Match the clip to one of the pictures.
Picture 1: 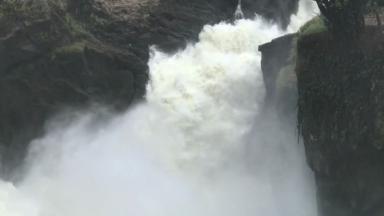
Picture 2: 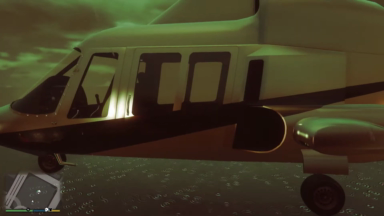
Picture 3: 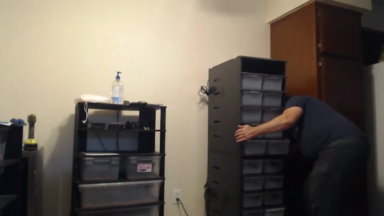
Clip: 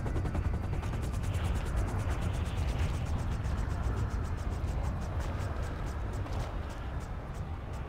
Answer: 2